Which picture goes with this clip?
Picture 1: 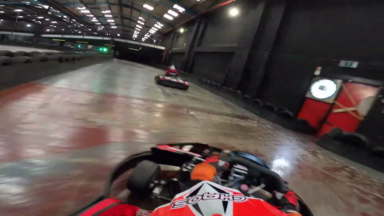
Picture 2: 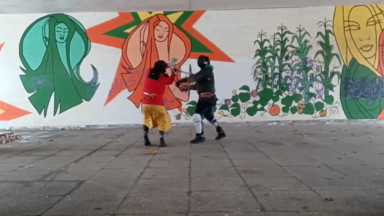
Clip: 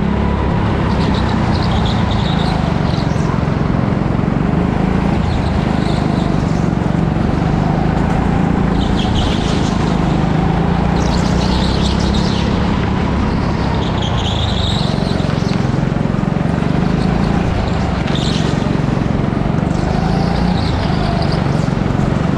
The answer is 1